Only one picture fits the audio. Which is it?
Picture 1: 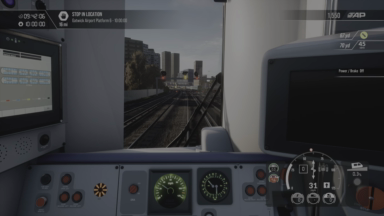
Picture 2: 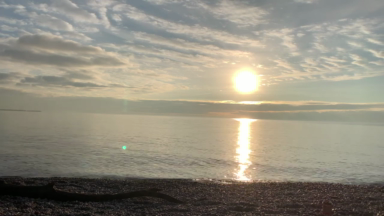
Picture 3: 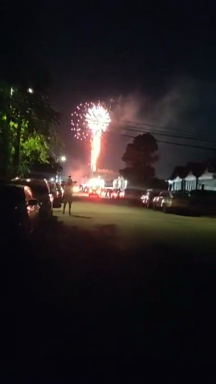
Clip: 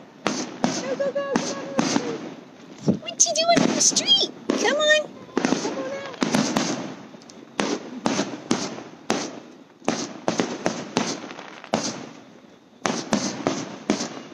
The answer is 3